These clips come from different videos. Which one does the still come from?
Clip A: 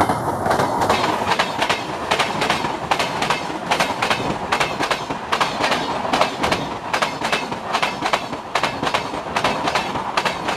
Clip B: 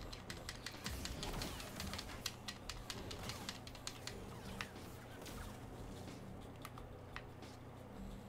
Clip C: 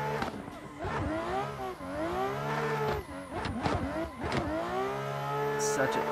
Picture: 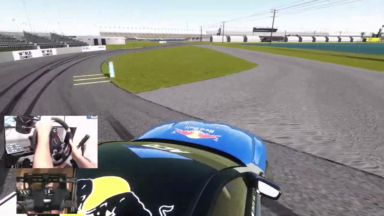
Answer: C